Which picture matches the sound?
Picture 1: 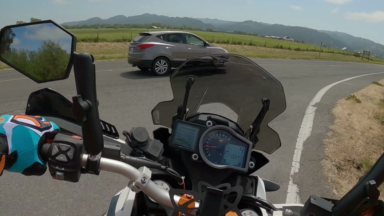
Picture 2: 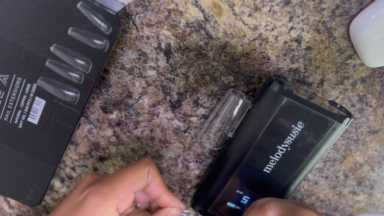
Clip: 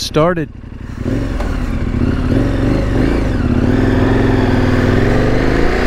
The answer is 1